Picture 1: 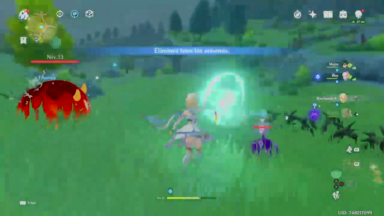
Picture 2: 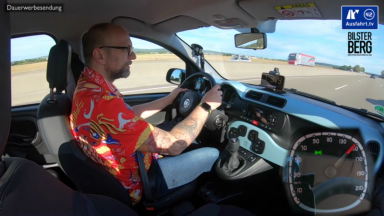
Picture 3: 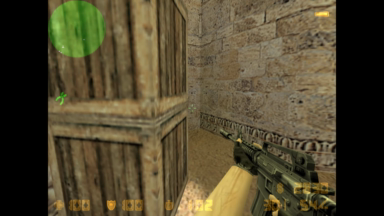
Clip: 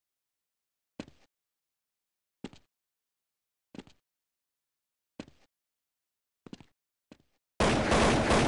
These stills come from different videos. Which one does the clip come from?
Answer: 3